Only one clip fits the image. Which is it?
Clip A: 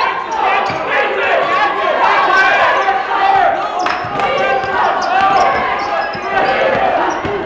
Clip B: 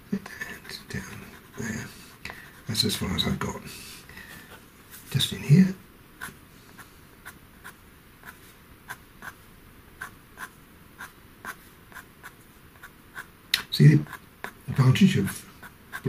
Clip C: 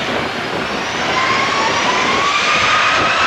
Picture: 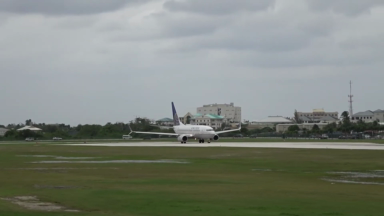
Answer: C